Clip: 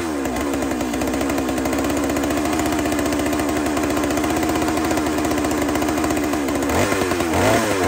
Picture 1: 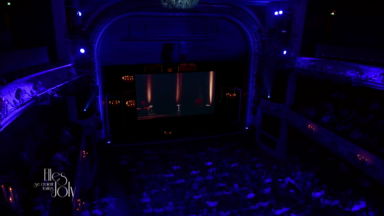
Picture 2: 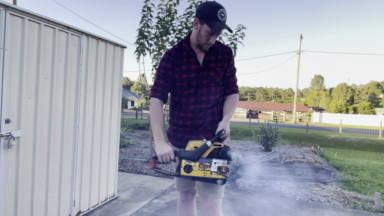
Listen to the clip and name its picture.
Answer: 2